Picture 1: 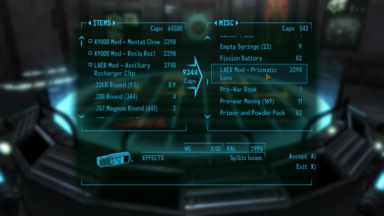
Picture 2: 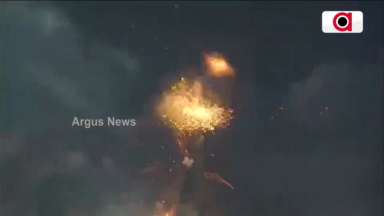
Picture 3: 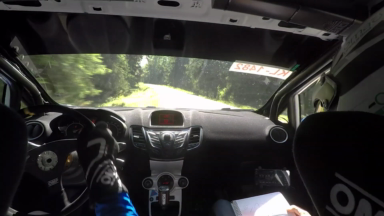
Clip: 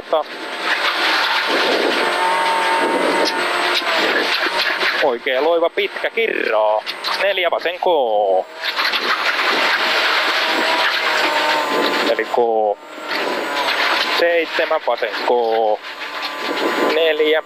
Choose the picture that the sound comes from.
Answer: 3